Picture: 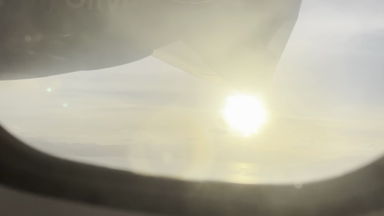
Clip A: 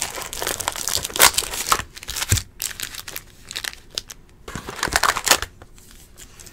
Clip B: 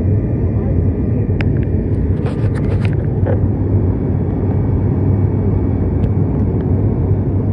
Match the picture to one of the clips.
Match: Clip B